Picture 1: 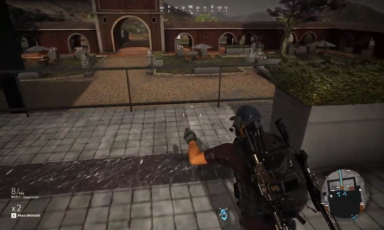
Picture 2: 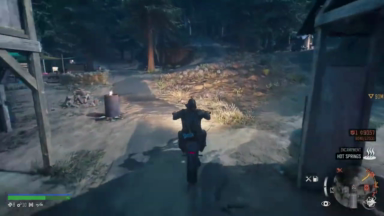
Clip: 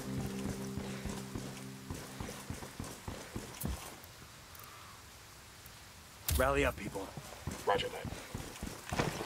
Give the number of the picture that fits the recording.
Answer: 1